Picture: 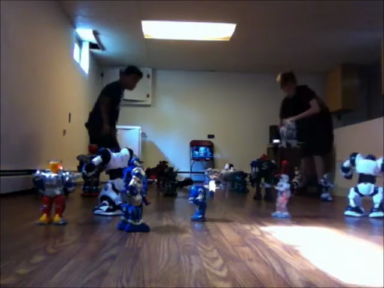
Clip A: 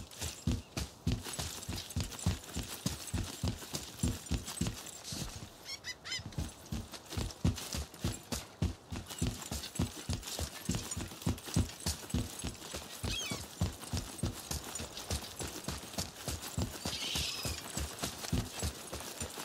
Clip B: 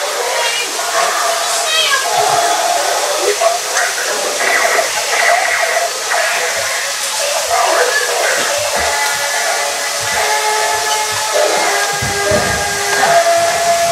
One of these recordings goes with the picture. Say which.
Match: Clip B